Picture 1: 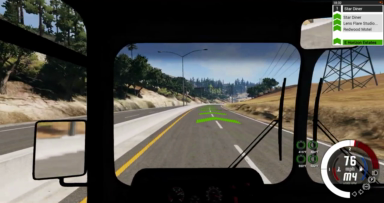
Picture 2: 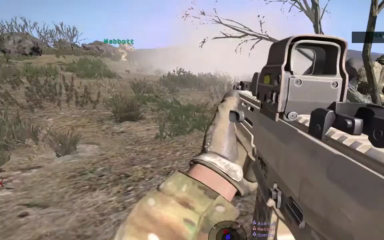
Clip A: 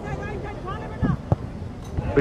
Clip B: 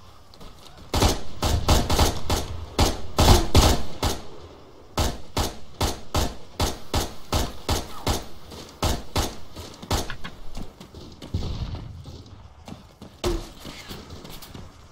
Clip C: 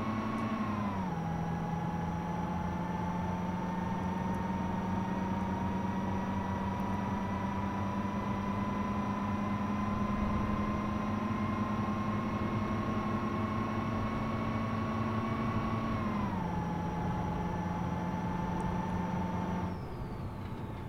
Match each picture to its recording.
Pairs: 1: C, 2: B